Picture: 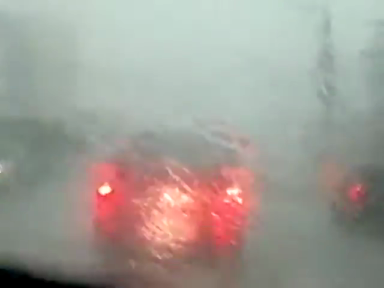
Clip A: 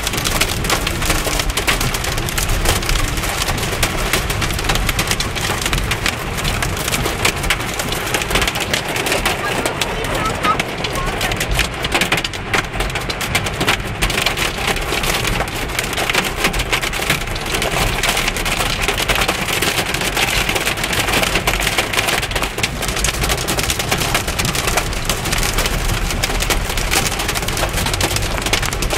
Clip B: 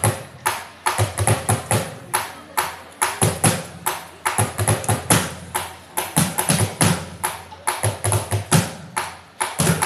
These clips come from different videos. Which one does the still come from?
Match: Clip A